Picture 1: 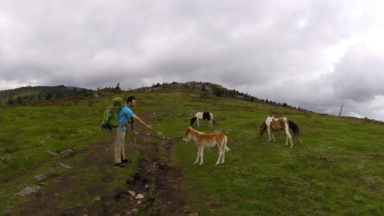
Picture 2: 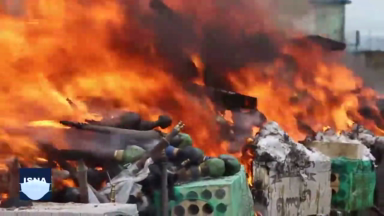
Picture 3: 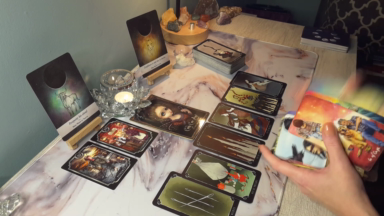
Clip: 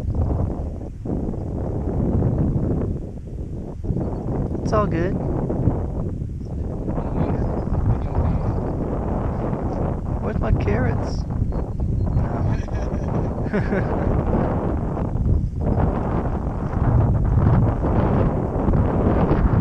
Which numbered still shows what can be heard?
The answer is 1